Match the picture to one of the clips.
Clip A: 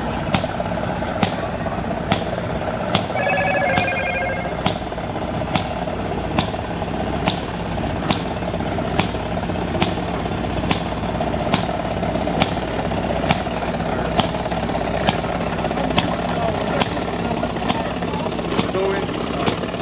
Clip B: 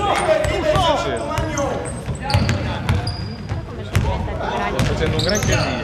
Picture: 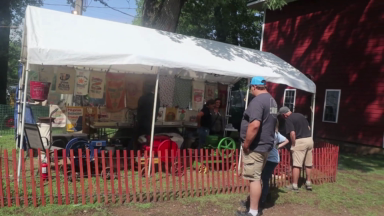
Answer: A